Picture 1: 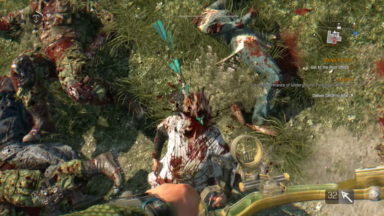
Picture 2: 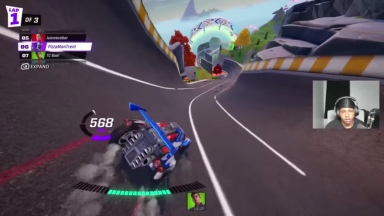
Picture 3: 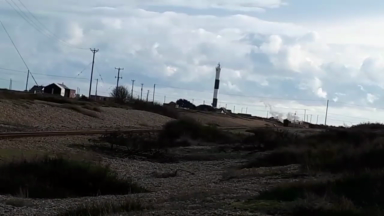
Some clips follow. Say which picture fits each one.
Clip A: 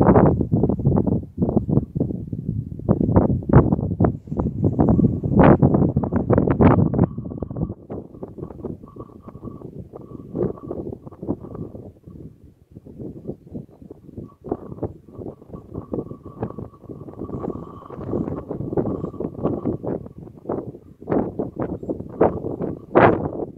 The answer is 3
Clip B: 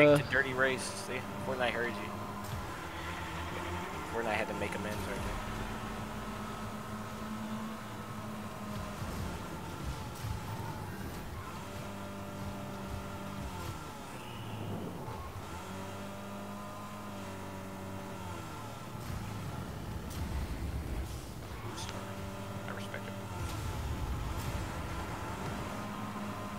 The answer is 2